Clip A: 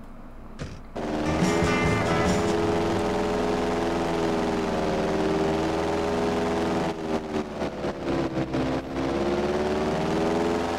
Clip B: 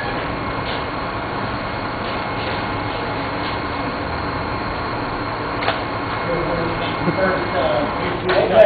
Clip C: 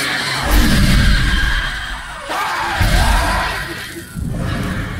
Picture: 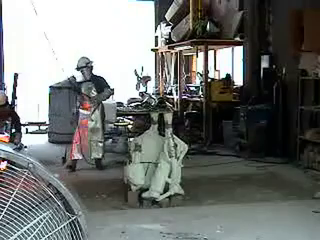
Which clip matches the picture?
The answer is B